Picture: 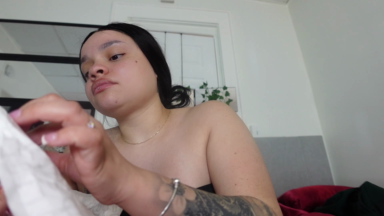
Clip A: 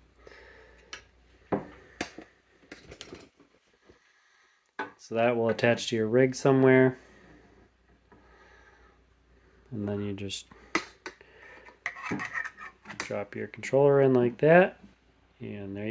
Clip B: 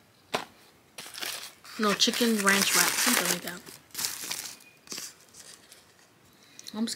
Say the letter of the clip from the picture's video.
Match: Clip B